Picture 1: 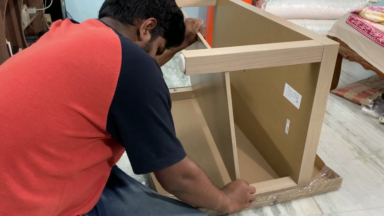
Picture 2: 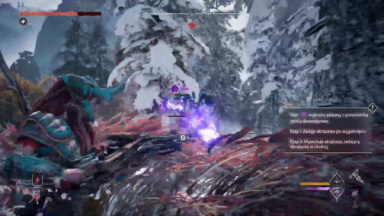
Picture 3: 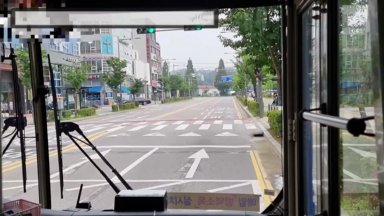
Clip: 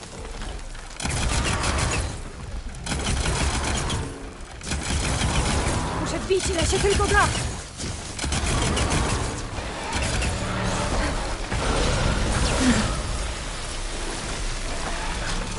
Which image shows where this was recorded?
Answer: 2